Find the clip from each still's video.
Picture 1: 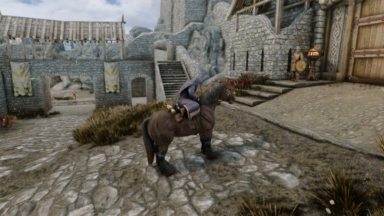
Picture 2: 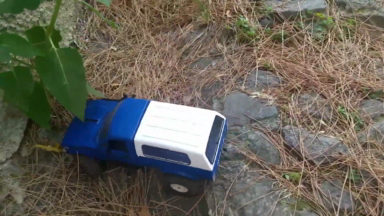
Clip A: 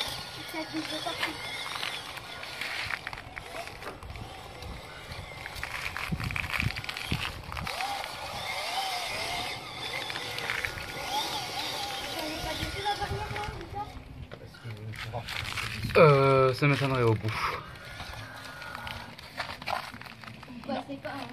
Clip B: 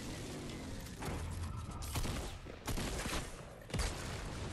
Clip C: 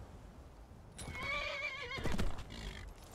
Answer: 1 C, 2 A